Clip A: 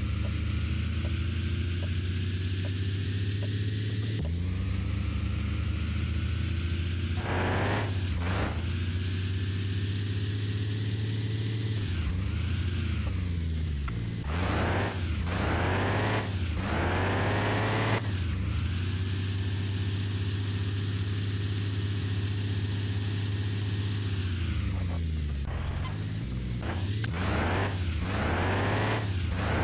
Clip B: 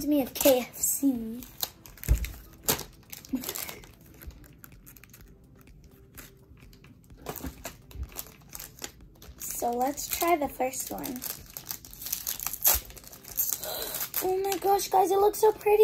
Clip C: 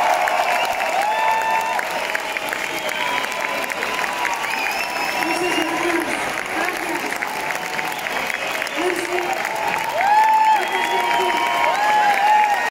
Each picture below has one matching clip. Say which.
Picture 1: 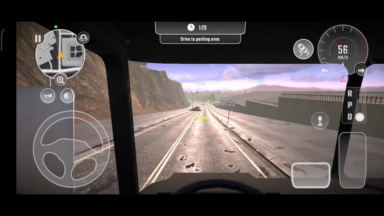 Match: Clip A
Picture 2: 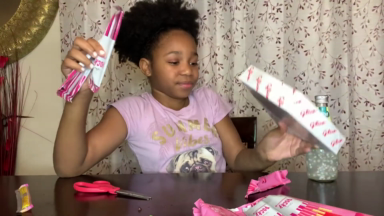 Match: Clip B